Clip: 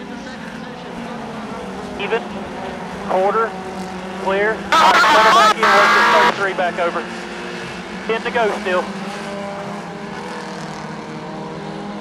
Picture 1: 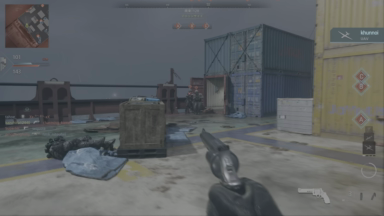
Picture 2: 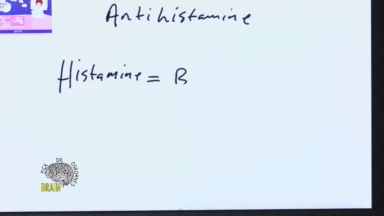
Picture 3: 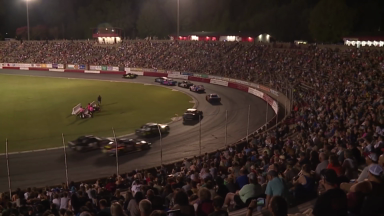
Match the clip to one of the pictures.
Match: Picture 3